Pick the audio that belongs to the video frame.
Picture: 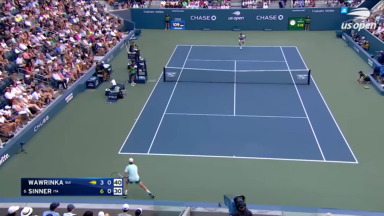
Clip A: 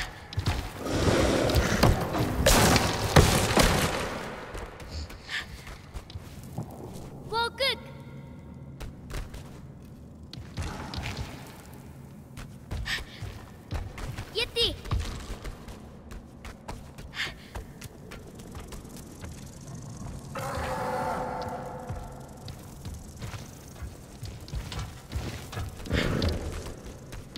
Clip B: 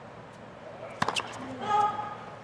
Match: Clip B